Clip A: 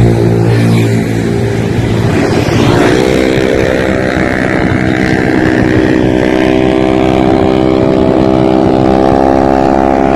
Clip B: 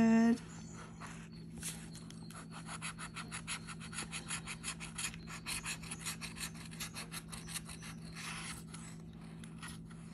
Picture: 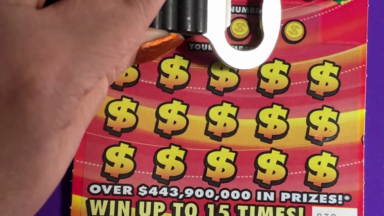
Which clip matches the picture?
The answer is B